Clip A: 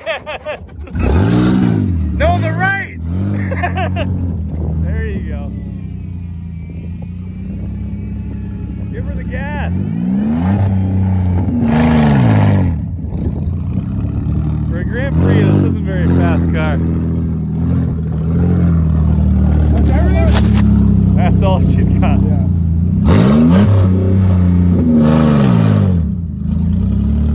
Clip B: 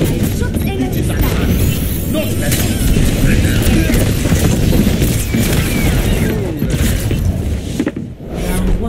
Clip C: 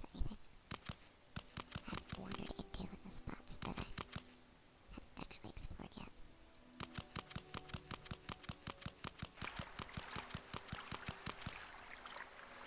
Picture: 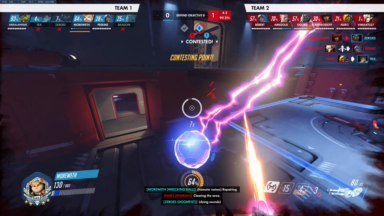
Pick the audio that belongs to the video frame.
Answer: B